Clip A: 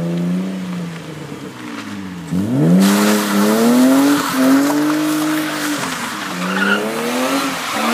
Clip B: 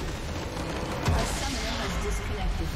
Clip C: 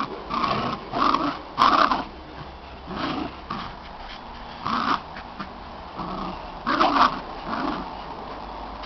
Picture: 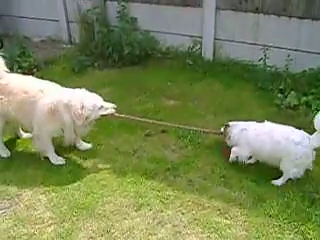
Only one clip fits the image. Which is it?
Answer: C